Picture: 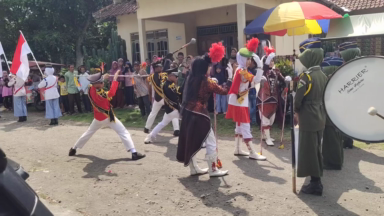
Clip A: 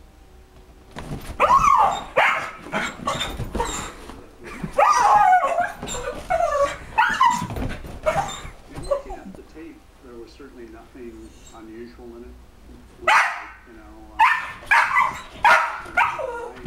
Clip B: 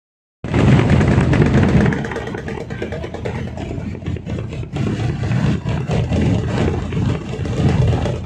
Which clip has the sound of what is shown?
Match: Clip B